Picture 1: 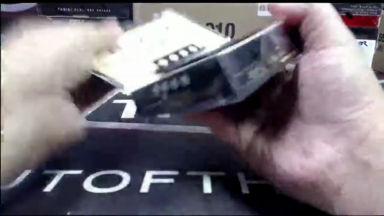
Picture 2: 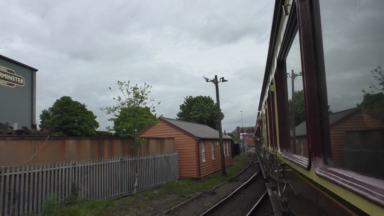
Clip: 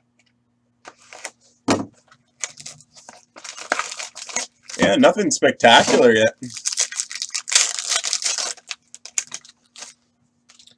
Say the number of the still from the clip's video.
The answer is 1